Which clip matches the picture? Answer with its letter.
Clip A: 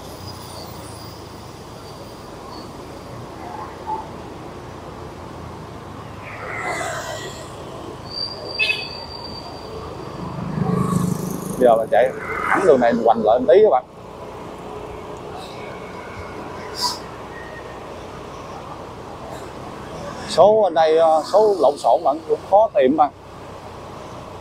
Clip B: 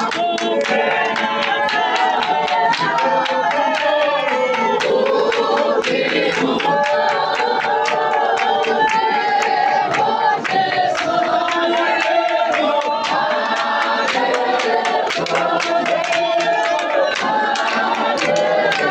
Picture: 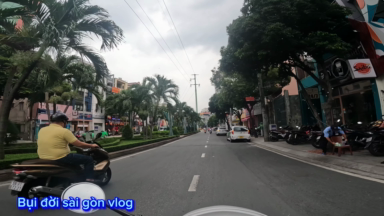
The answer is A